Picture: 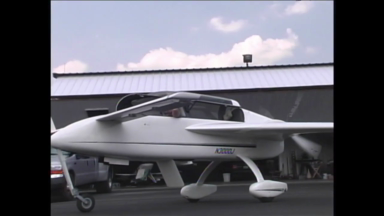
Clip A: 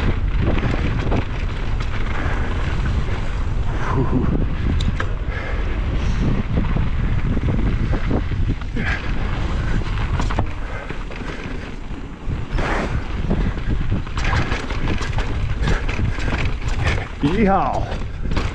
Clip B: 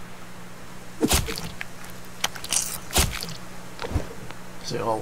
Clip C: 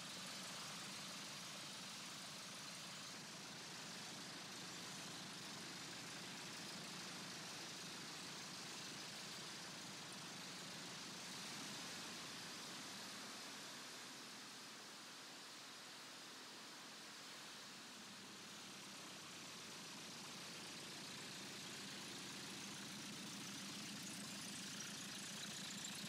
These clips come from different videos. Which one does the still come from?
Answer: C